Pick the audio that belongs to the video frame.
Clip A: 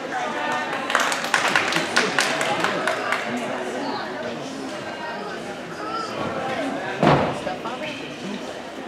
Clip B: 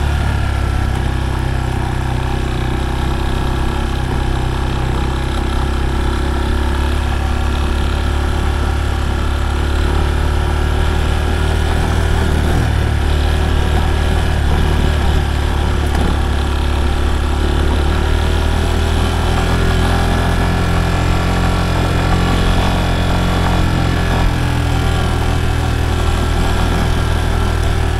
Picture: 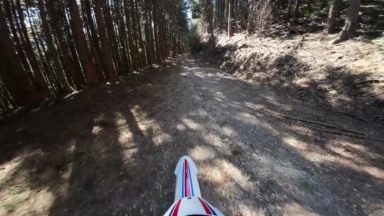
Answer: B